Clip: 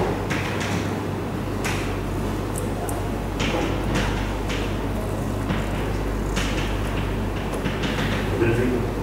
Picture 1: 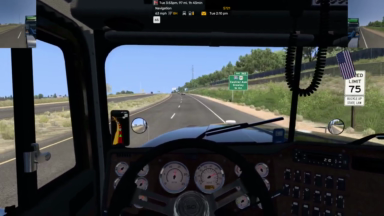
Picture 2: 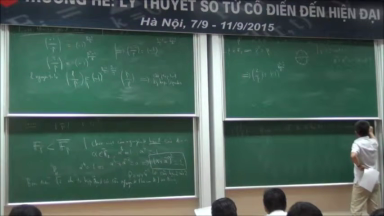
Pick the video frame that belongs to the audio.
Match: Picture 2